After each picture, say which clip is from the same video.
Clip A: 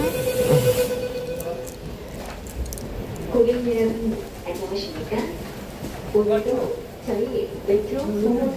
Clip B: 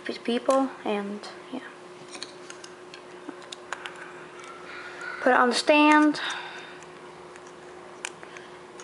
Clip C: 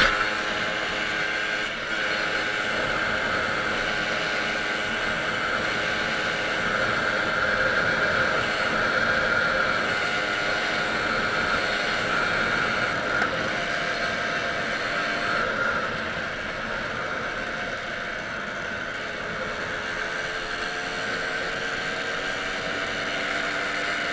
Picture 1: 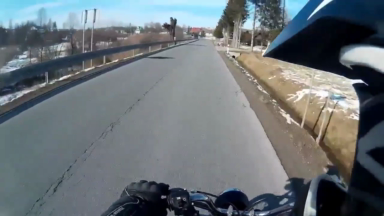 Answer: C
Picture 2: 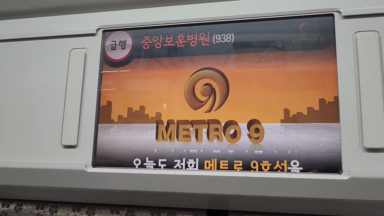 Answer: A